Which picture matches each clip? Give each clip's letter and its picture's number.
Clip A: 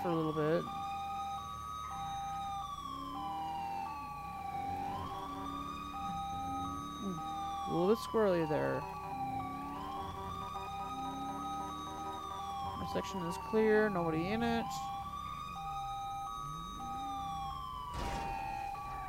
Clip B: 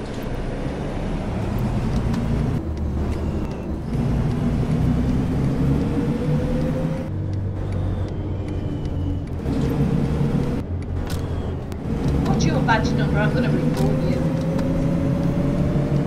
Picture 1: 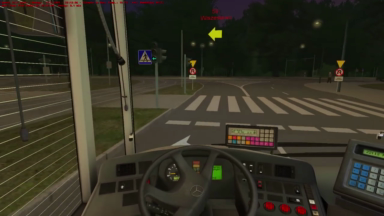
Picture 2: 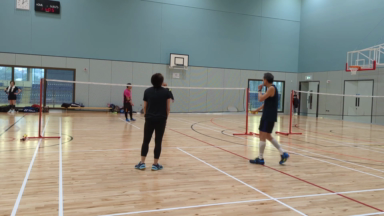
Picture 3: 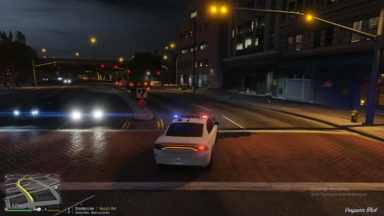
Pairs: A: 3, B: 1